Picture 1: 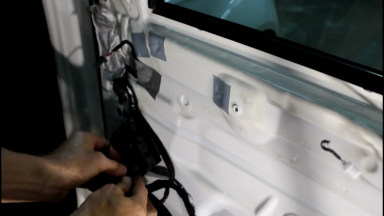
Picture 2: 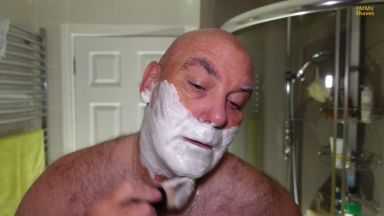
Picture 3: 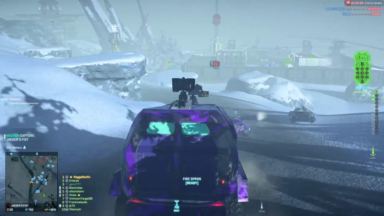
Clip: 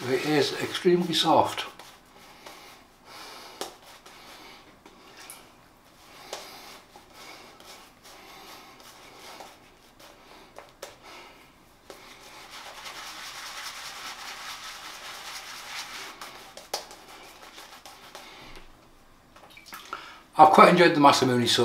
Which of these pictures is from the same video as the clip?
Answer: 2